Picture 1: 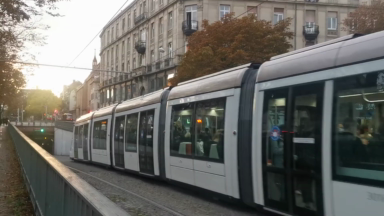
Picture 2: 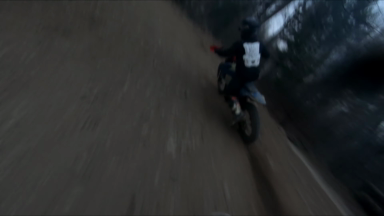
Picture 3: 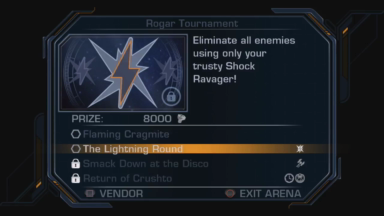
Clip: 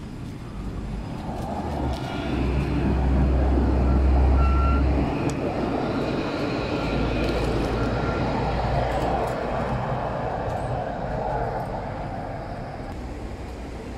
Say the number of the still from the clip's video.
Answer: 1